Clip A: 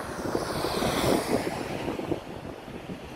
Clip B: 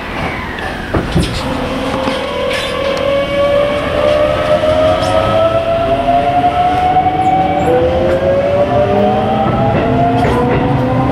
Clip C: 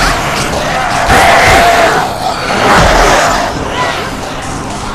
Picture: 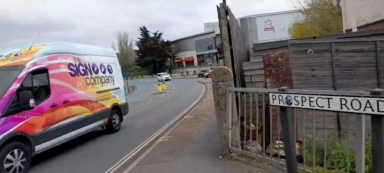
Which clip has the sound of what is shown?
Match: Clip A